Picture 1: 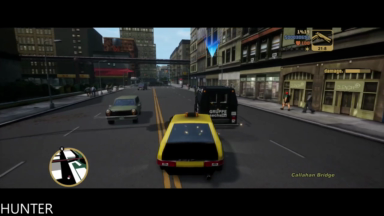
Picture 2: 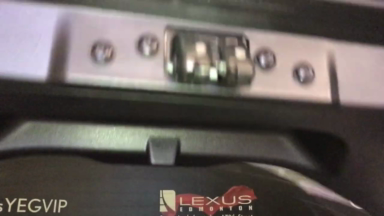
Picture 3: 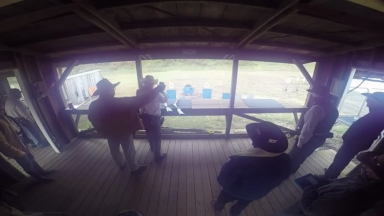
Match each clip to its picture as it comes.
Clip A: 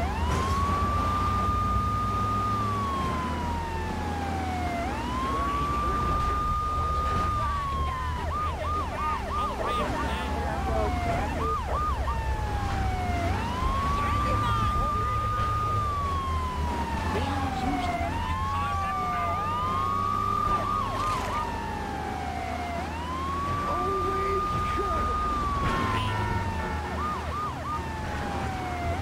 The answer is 1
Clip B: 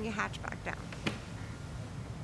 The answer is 2